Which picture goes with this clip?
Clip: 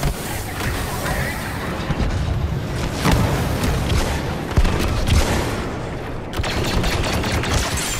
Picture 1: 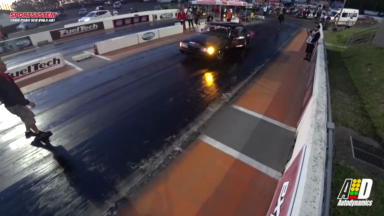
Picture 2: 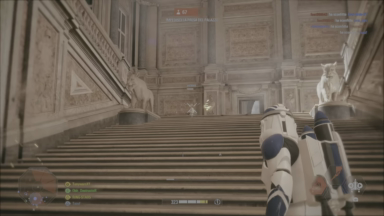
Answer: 2